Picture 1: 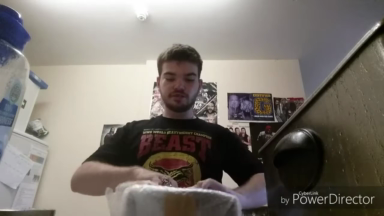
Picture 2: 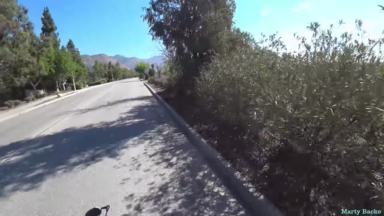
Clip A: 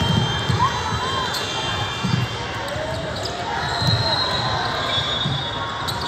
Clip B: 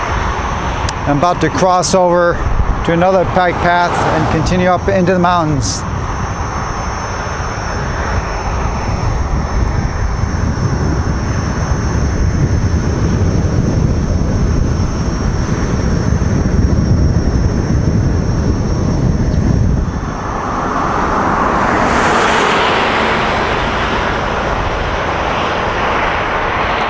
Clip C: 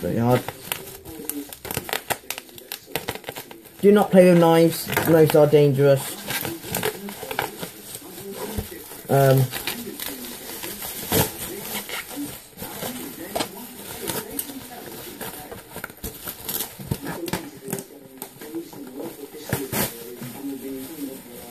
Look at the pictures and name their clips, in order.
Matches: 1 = C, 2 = B